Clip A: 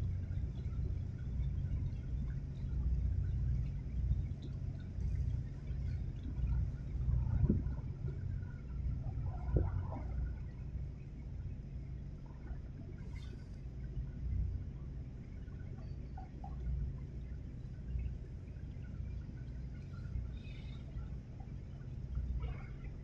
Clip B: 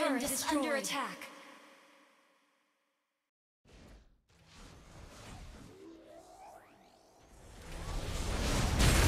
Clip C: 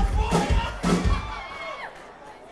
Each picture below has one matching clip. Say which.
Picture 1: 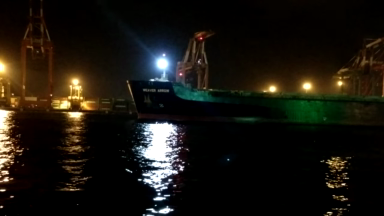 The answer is A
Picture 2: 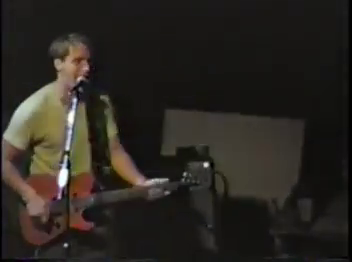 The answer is C